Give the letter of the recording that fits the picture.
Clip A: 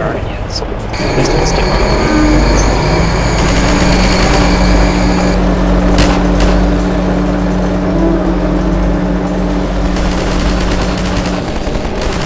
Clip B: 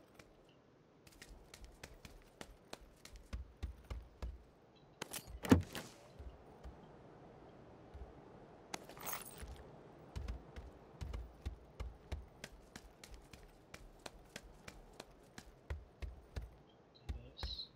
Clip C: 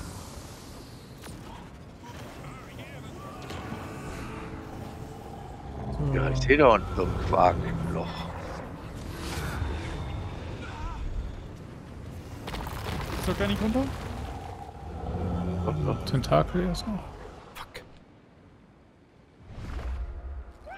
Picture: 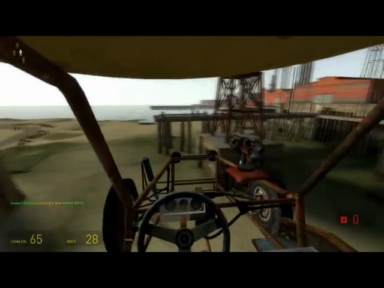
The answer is A